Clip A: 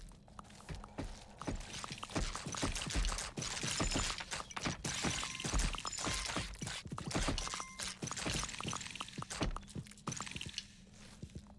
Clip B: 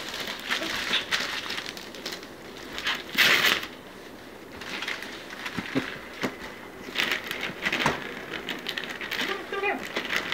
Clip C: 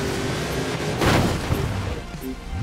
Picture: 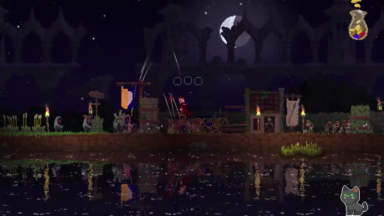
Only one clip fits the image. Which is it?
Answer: A